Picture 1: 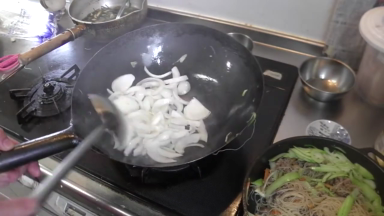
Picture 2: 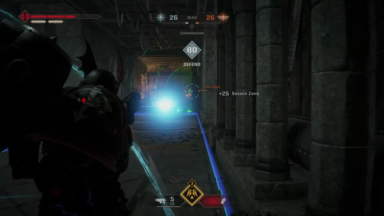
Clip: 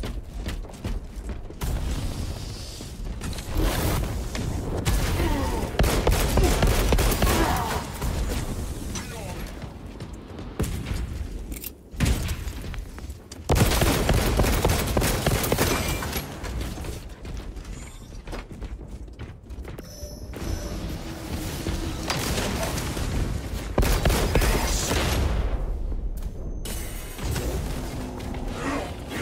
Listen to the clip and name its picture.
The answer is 2